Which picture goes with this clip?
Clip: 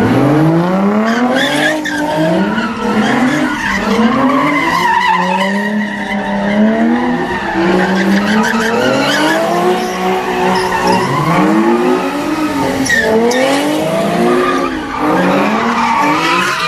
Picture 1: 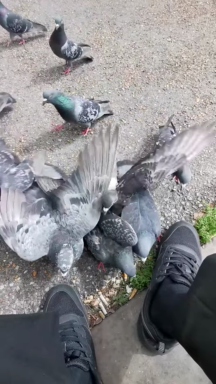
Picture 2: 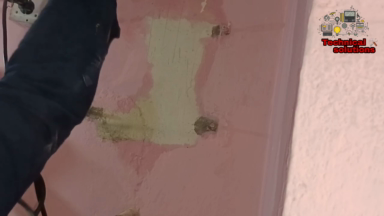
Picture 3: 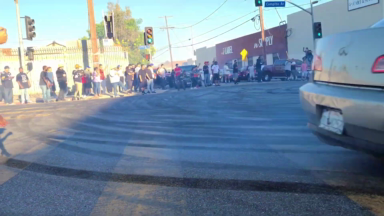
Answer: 3